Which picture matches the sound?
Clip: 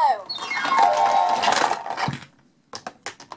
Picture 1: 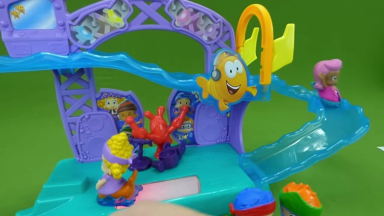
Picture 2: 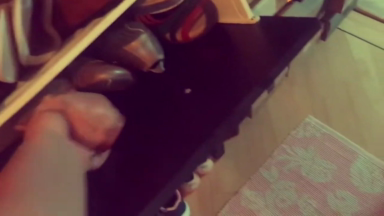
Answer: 1